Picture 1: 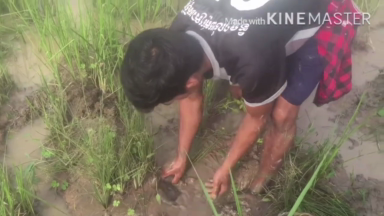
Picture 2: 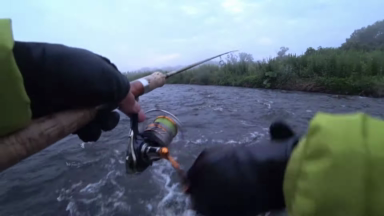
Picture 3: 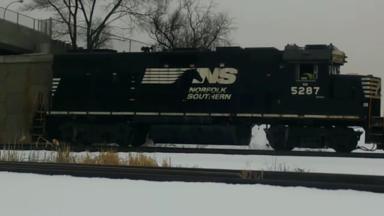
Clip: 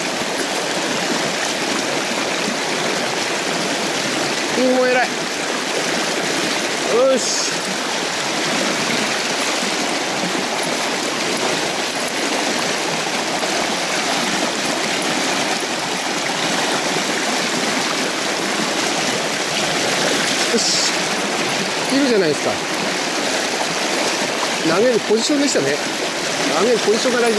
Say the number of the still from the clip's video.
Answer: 2